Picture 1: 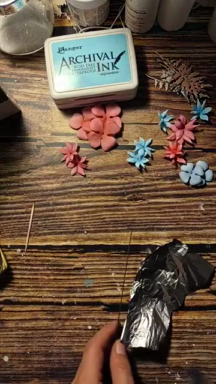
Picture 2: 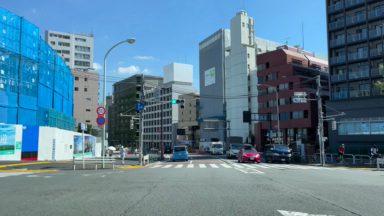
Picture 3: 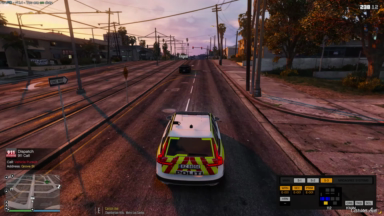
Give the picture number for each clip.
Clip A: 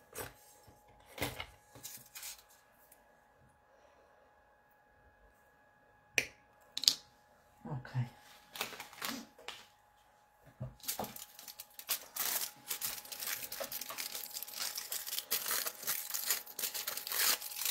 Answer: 1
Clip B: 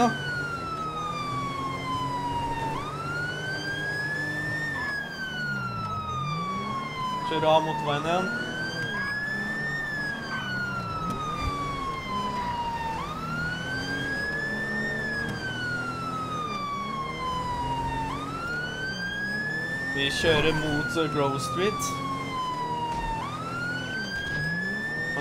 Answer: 3